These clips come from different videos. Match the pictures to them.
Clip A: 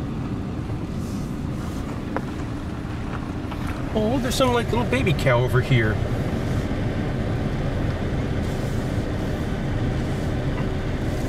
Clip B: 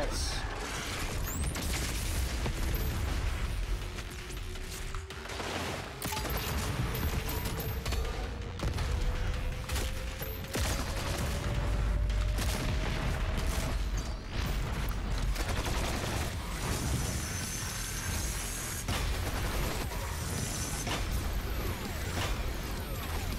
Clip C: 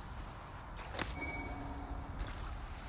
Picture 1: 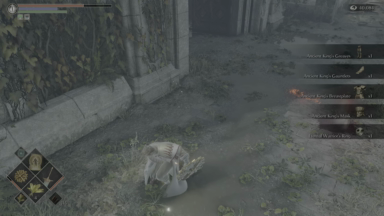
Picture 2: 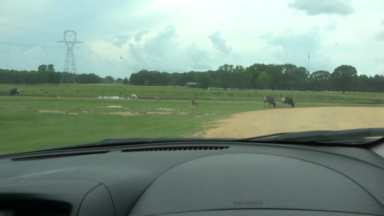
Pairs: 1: C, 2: A